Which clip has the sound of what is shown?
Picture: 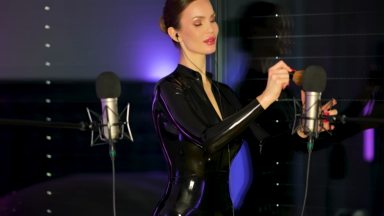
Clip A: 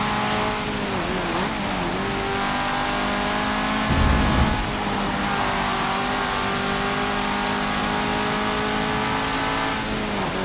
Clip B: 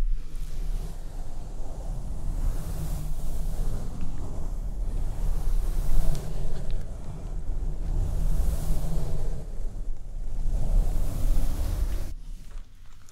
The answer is B